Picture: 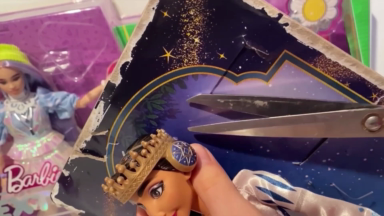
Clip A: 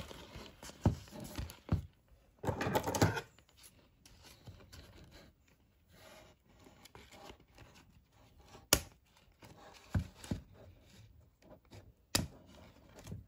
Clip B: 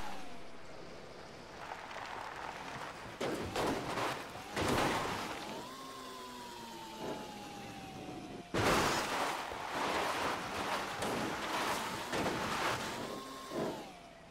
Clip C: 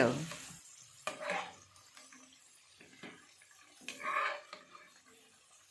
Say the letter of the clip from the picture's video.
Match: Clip A